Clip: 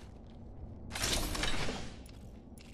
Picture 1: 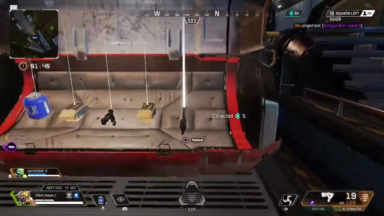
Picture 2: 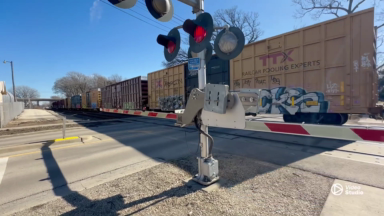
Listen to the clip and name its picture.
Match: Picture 1